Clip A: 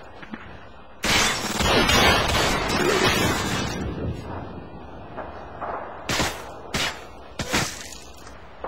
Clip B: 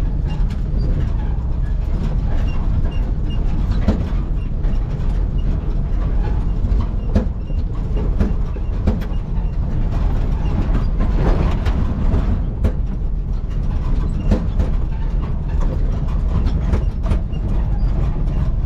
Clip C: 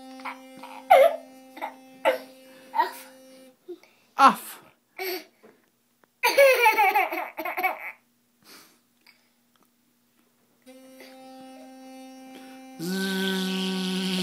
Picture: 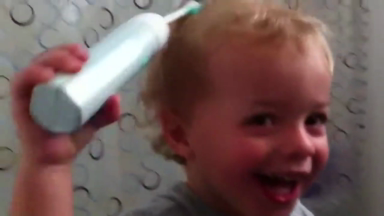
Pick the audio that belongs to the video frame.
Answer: C